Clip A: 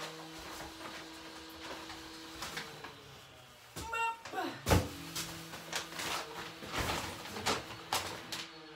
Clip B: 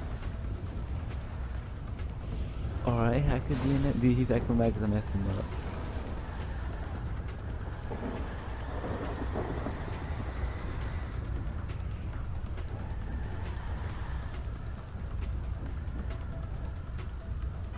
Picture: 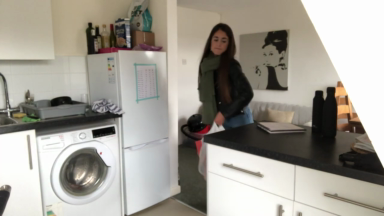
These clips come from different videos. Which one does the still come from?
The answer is A